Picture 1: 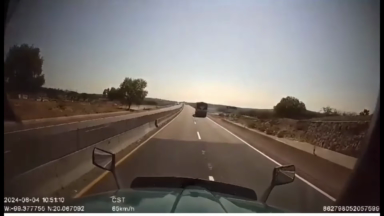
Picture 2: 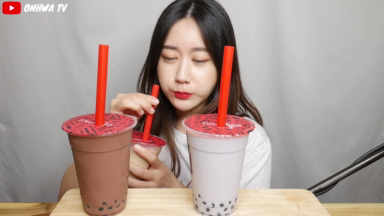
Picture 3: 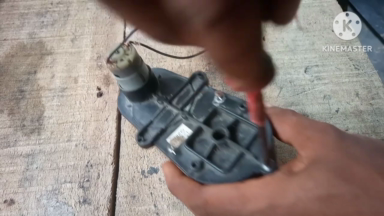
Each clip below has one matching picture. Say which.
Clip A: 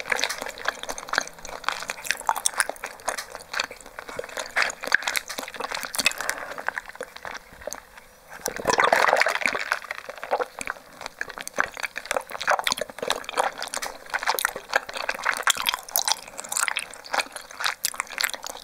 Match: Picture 2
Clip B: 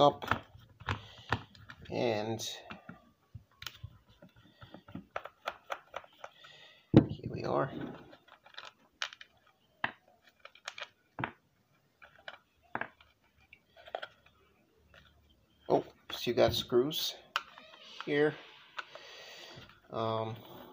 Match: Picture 3